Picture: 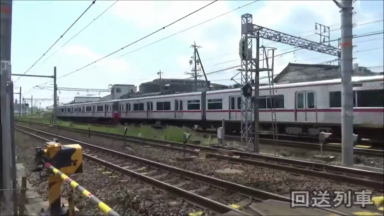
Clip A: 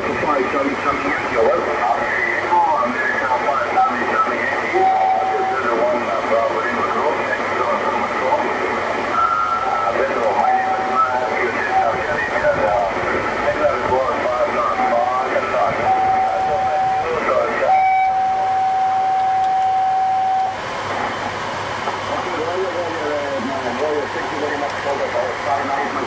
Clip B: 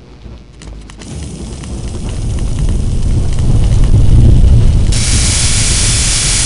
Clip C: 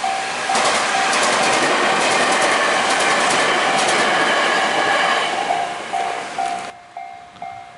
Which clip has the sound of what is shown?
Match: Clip C